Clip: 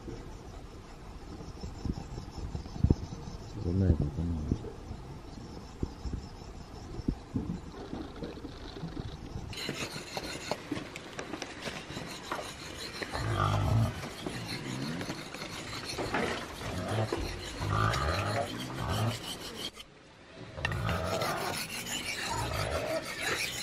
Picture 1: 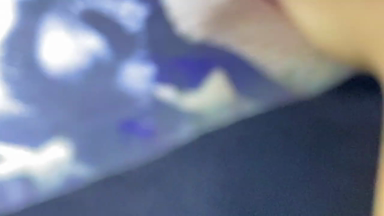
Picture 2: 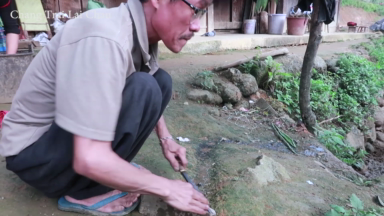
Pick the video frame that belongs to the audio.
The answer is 2